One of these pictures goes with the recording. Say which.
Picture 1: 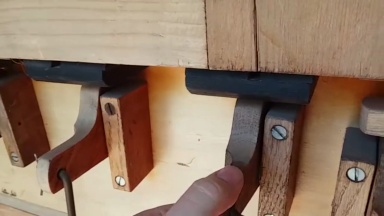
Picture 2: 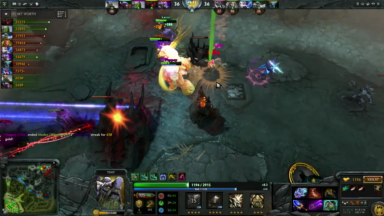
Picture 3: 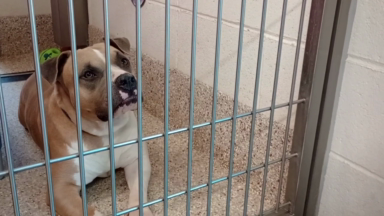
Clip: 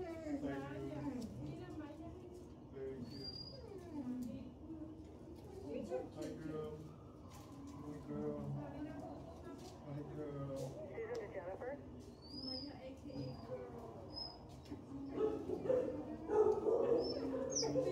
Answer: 3